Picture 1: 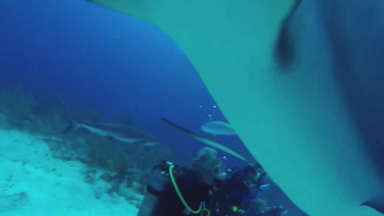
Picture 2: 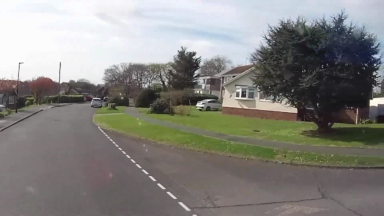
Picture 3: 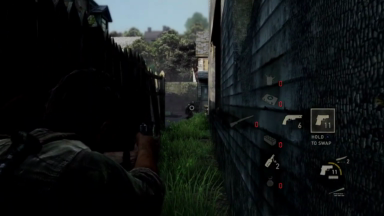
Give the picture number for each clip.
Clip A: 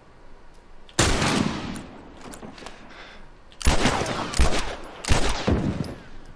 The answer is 3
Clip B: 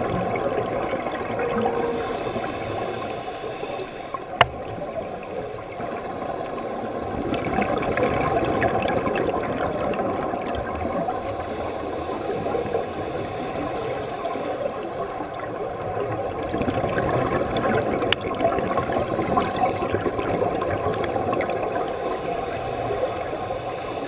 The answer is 1